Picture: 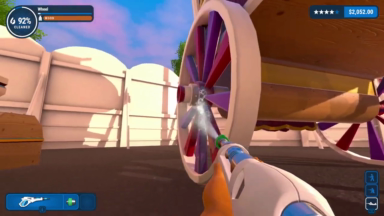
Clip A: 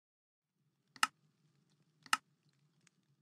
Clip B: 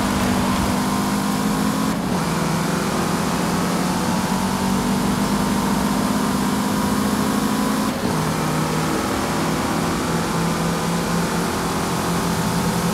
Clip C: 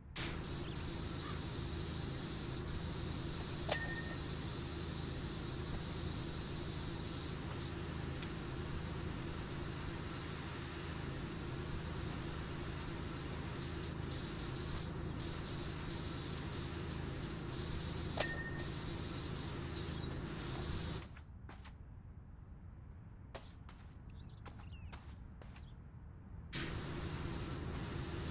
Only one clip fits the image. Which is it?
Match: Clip C